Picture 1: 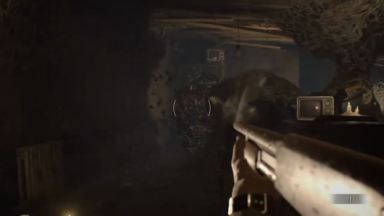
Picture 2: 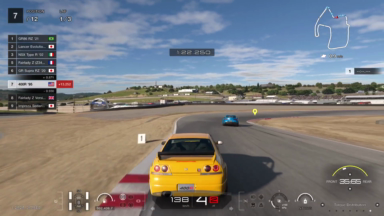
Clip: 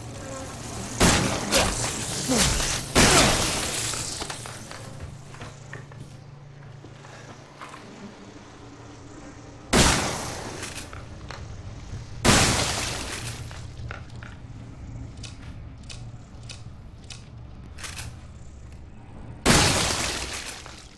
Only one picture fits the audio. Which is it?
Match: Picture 1